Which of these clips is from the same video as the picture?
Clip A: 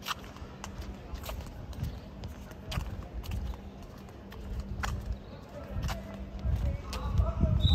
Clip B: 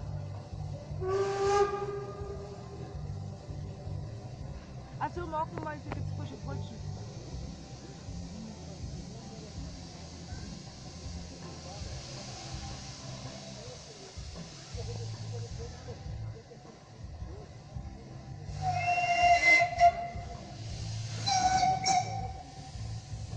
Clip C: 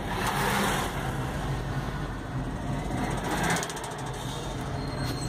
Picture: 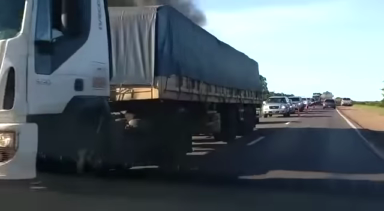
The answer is C